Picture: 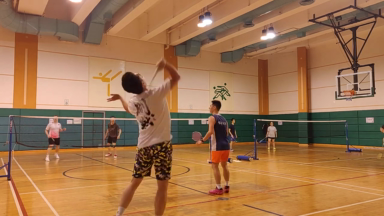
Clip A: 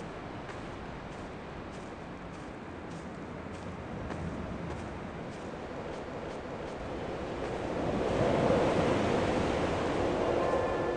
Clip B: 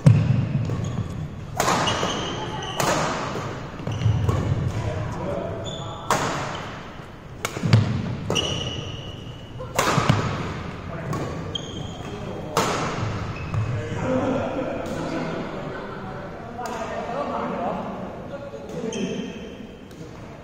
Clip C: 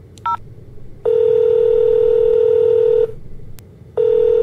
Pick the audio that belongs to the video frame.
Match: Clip B